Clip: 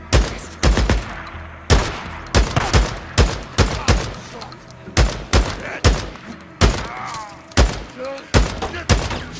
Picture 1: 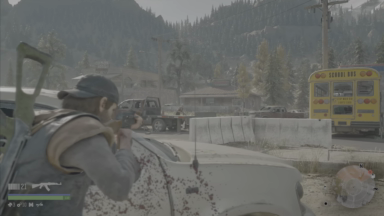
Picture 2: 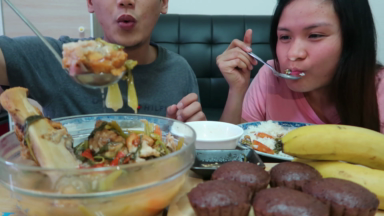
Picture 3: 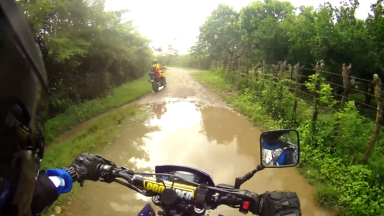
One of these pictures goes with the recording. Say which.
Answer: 1